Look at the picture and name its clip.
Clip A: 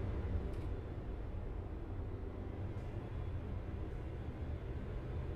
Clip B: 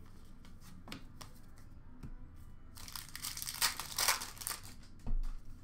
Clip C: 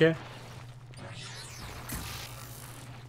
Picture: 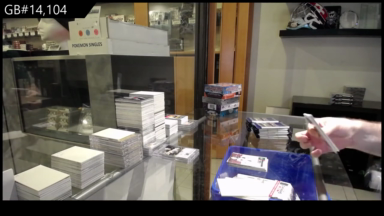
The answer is B